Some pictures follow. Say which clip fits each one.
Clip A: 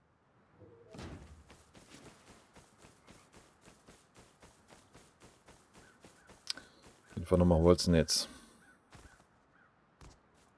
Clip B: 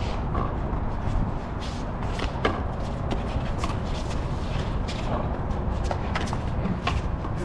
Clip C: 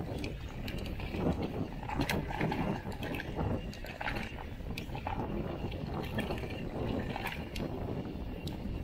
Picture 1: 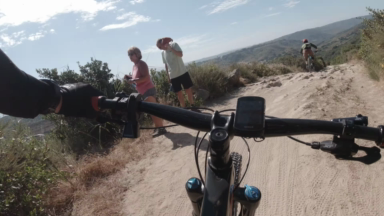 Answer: C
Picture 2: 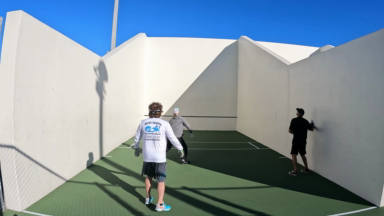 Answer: B